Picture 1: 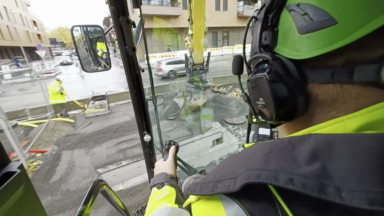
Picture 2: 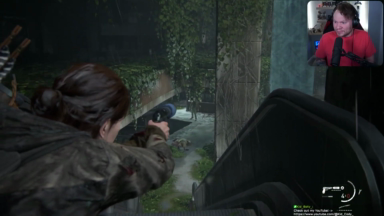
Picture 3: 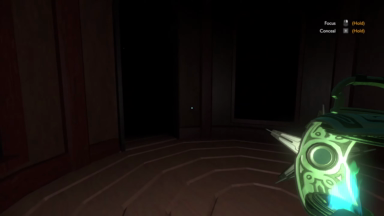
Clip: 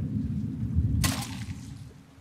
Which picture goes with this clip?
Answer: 2